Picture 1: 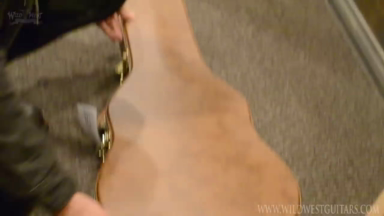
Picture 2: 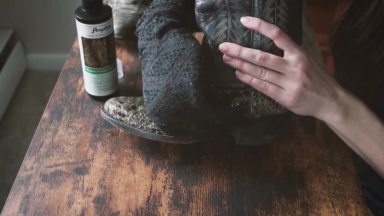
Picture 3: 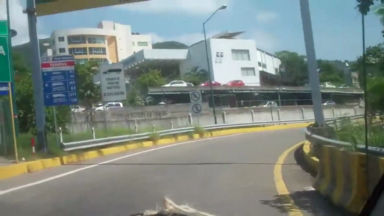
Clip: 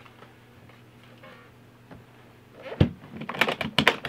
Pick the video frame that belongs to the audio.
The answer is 1